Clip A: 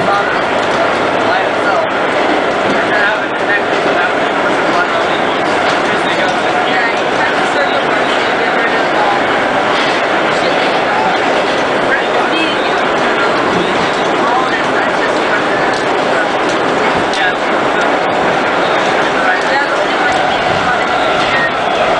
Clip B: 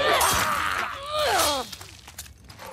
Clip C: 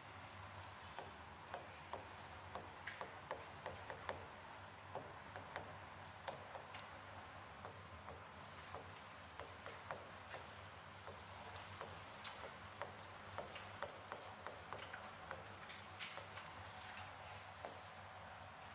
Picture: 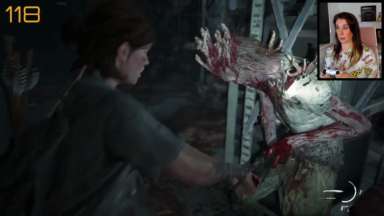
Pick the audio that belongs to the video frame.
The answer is B